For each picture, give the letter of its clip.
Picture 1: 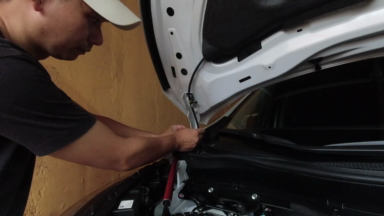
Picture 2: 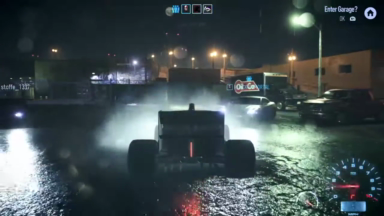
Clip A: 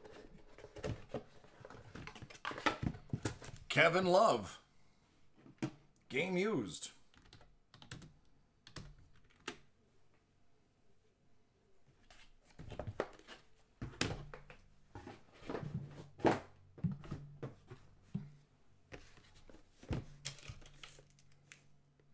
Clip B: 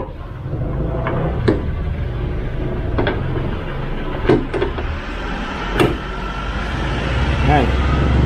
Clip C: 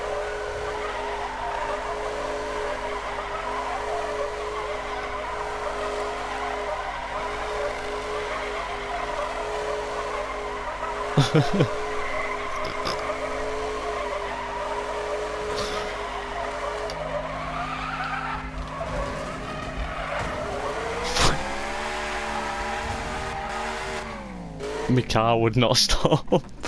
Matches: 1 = B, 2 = C